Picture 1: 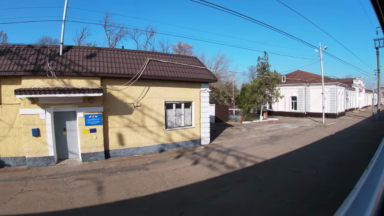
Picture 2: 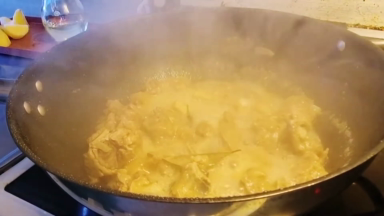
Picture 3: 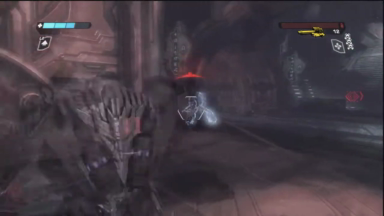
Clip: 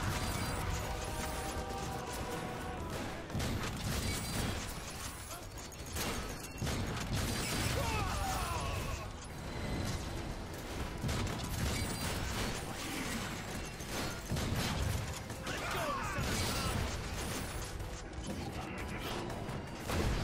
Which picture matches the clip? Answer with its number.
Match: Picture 3